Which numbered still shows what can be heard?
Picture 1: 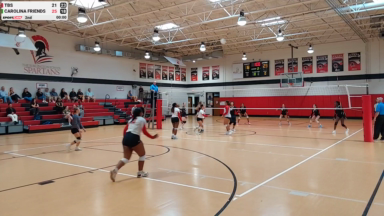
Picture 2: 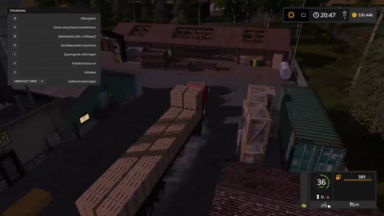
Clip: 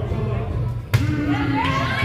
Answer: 1